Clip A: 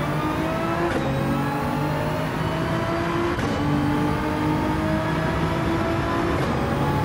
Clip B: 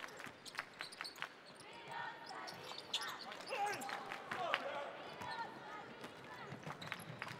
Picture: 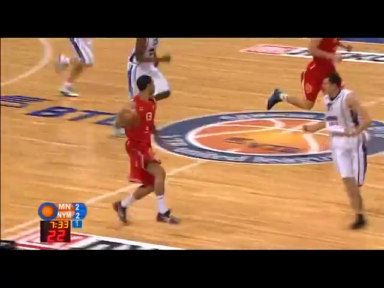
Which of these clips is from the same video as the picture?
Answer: B